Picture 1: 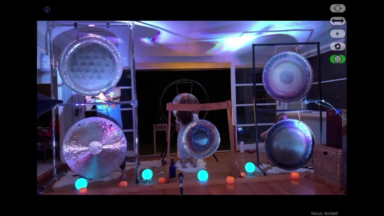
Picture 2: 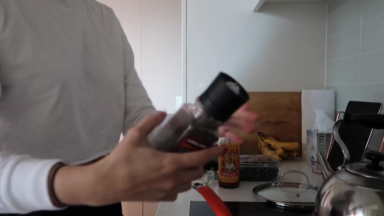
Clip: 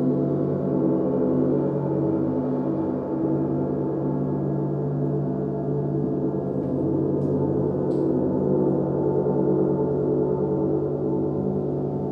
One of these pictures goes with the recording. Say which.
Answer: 1